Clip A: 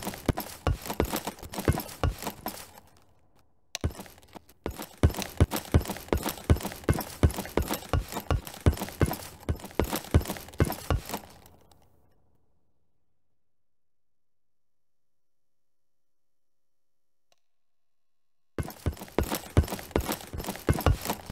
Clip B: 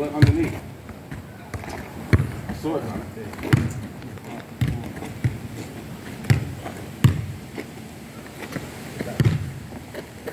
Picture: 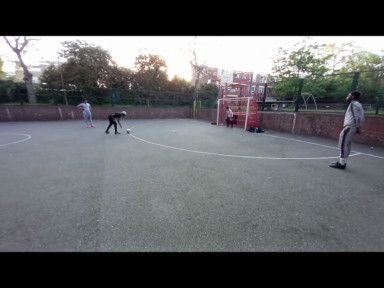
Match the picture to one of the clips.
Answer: B